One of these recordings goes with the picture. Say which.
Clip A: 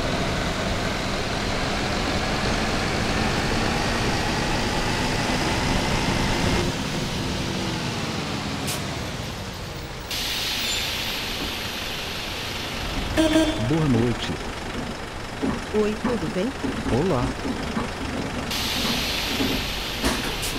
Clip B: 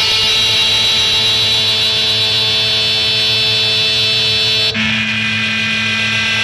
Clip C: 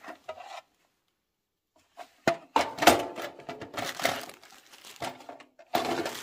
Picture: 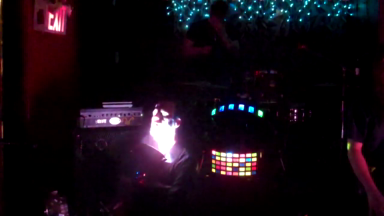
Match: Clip B